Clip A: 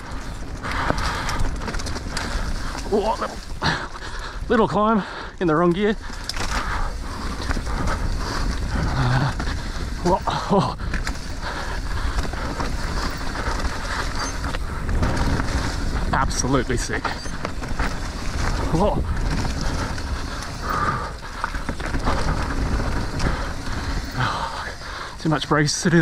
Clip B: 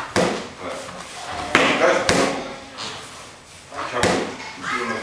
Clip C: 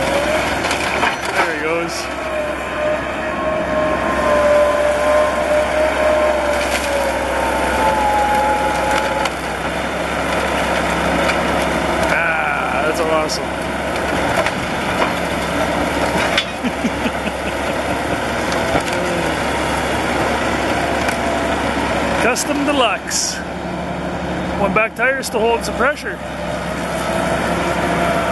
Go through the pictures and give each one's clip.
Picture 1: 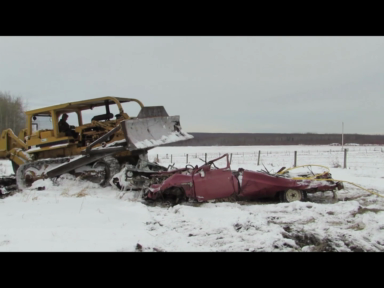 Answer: C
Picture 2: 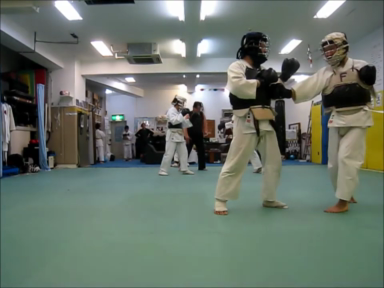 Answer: B